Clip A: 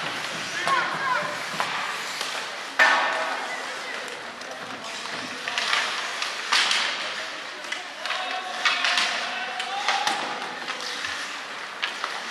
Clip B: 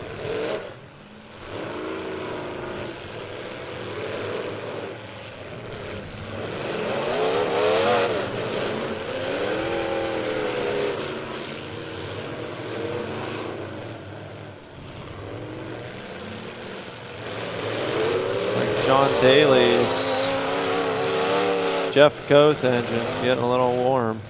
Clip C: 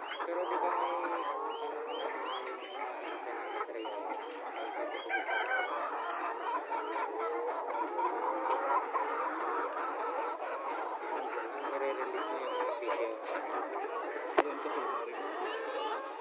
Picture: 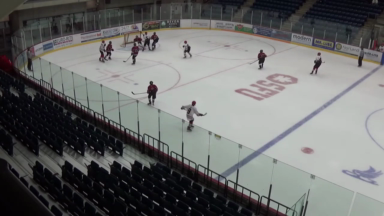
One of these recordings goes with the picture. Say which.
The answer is A